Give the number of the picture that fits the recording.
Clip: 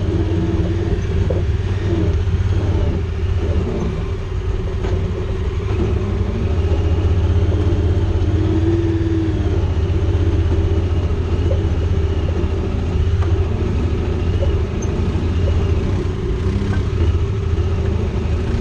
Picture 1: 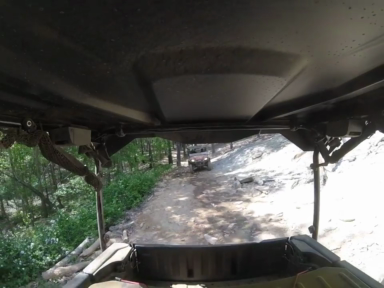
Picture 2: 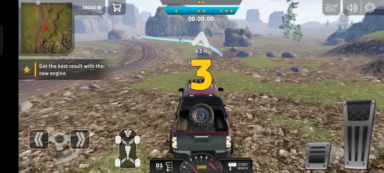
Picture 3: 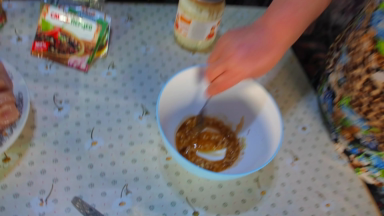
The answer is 1